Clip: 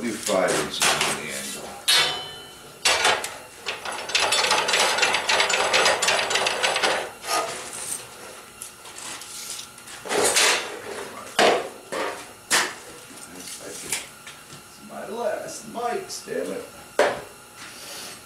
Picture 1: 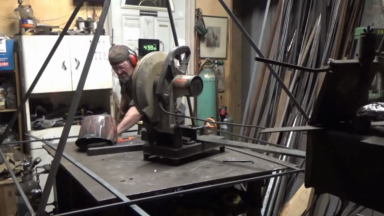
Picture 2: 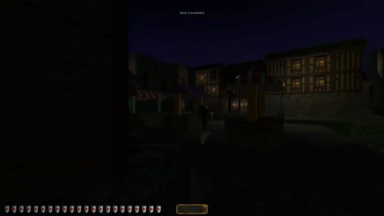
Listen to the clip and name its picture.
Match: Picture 1